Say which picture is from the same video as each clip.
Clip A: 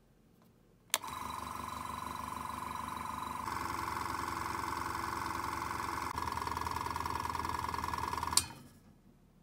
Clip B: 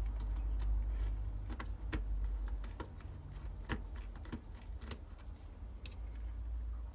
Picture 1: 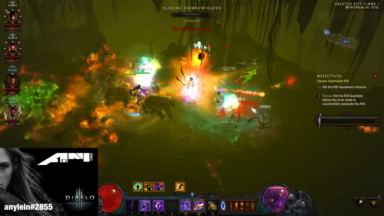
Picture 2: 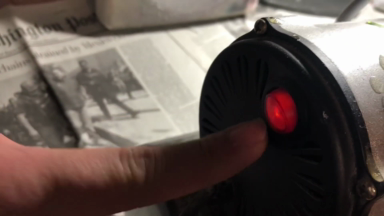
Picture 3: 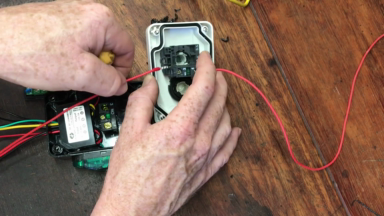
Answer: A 2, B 3